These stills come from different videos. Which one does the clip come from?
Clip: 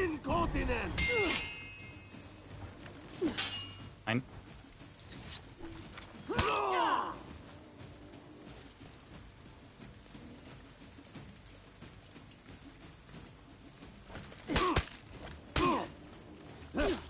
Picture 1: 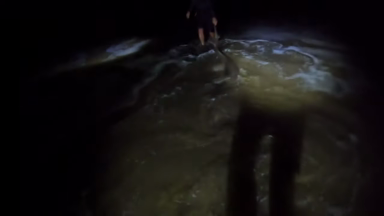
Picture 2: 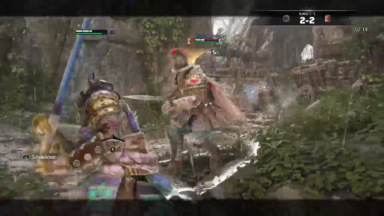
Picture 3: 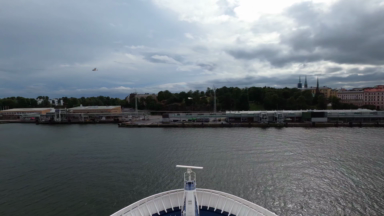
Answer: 2